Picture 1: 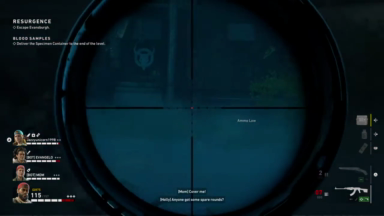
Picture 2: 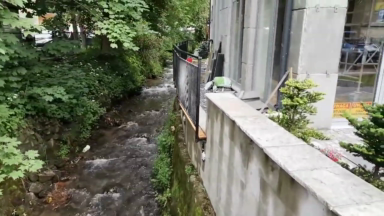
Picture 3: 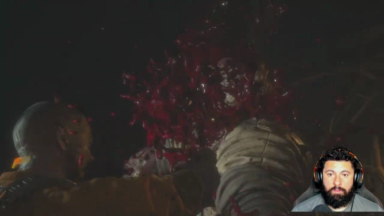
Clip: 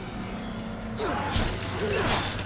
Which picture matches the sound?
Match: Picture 3